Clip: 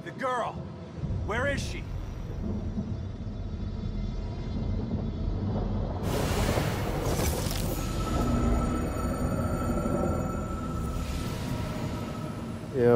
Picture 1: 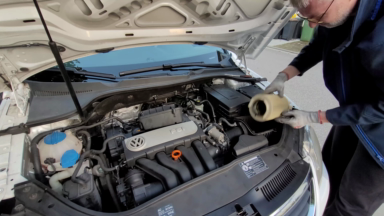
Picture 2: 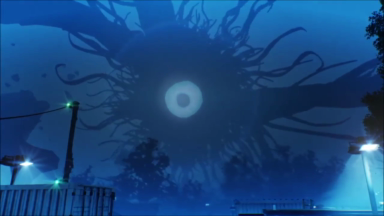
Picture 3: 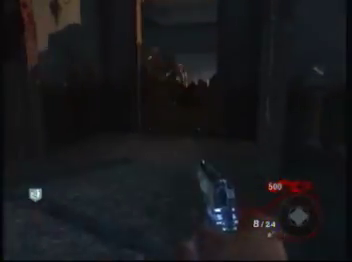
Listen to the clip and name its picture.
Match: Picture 2